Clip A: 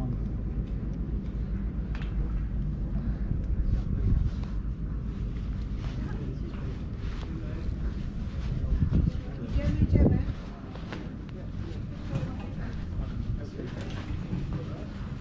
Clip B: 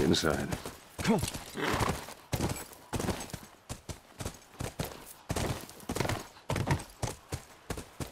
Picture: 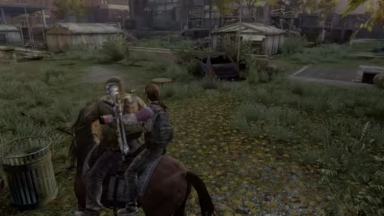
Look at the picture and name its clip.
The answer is B